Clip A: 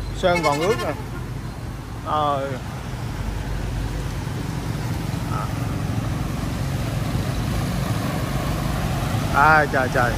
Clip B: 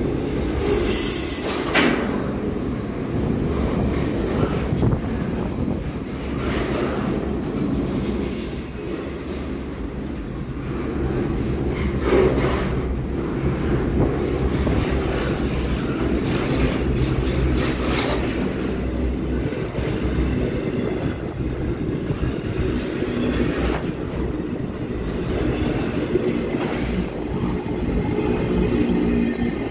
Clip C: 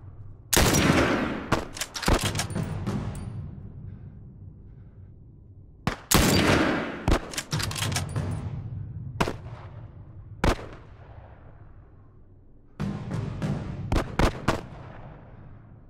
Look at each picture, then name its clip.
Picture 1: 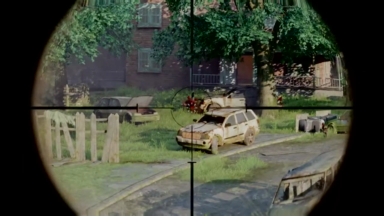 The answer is C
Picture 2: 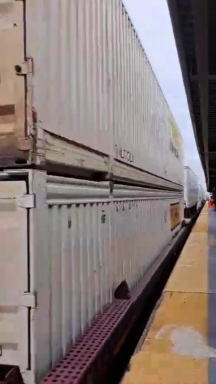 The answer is B